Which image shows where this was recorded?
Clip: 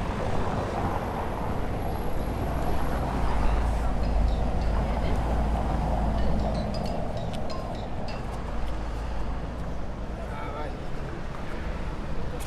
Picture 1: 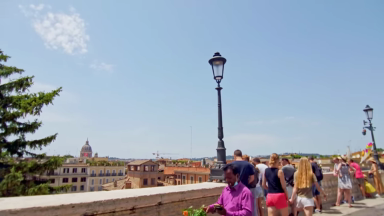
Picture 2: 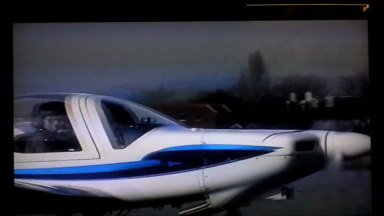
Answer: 1